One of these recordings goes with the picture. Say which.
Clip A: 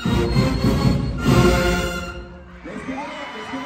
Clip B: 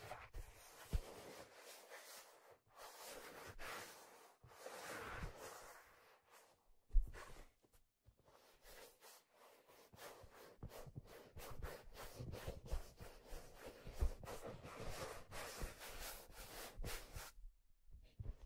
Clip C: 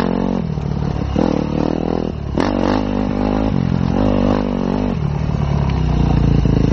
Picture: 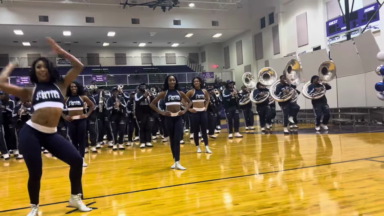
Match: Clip A